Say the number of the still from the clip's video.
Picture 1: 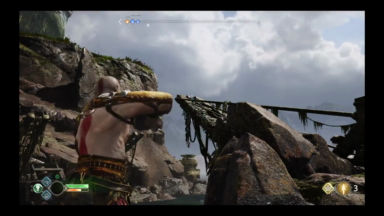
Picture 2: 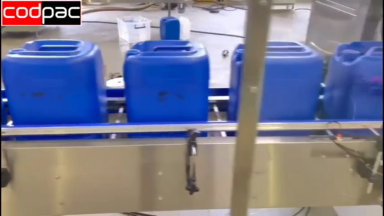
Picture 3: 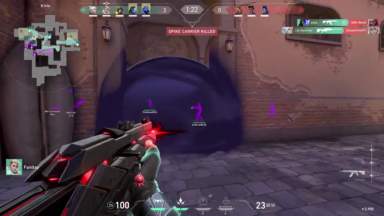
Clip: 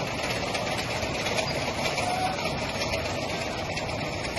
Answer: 2